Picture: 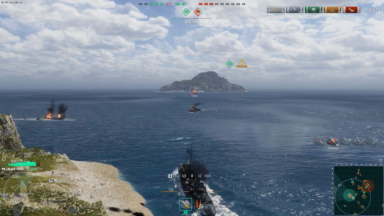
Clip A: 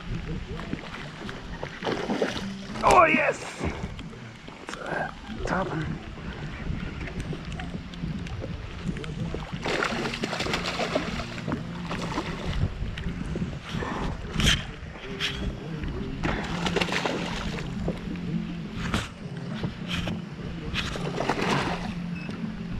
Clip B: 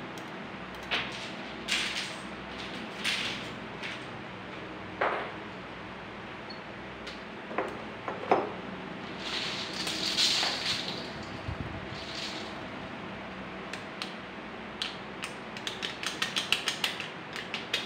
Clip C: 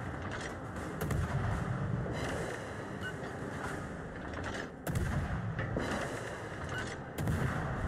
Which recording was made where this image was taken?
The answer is C